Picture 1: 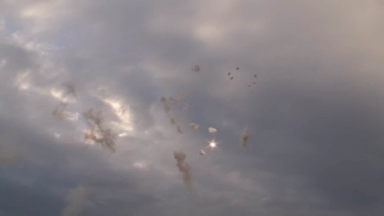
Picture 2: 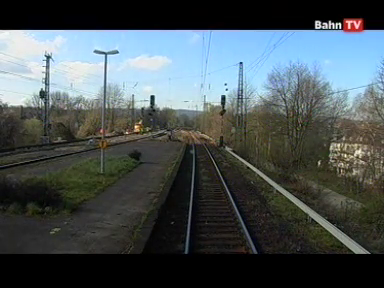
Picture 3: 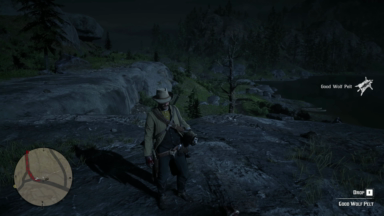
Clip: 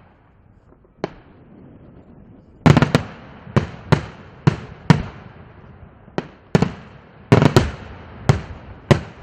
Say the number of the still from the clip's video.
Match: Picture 1